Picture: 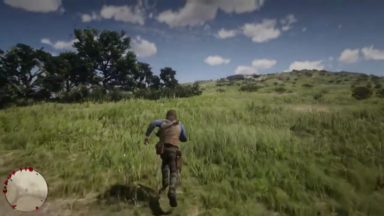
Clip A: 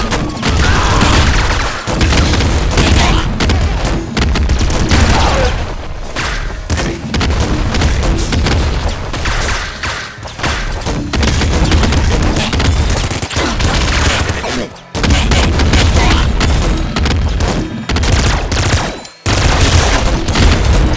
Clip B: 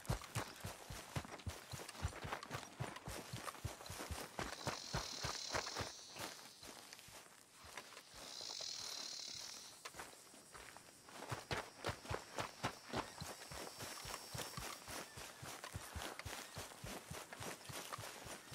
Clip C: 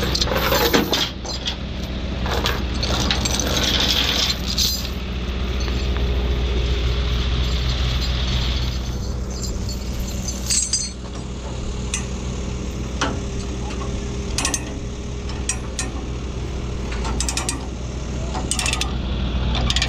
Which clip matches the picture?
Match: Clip B